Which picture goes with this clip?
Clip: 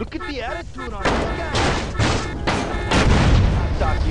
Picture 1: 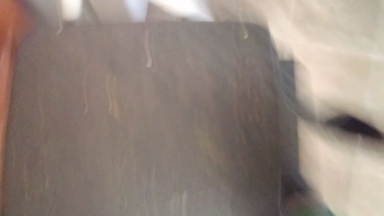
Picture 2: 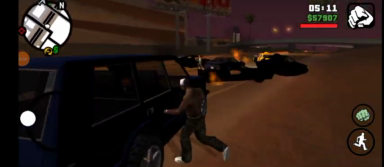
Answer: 2